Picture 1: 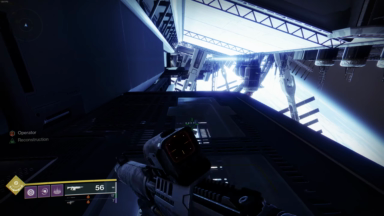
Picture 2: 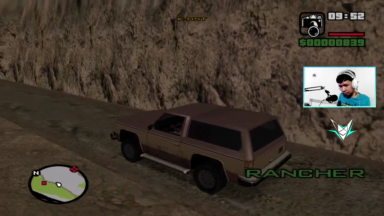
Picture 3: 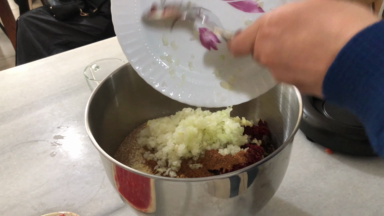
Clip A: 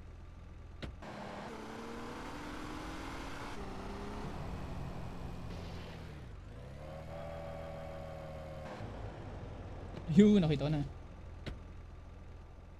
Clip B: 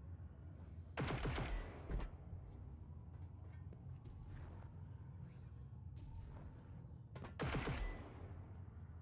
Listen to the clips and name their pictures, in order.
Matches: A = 2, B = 1